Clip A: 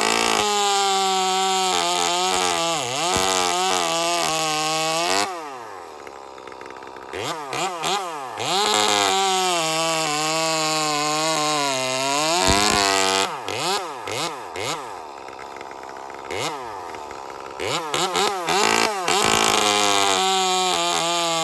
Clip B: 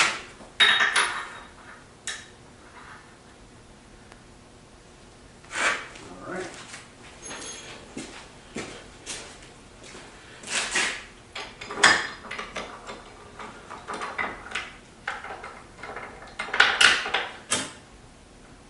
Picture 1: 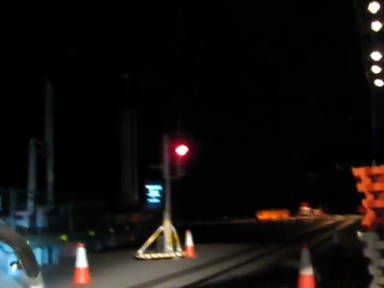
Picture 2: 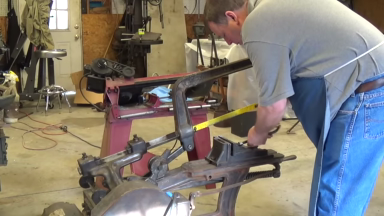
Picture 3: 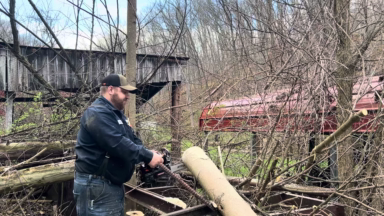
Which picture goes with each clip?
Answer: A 3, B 2